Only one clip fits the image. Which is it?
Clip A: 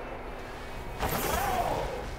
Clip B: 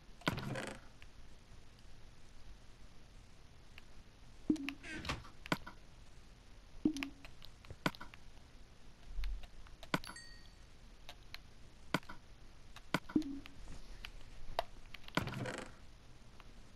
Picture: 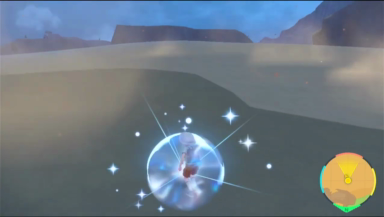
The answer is A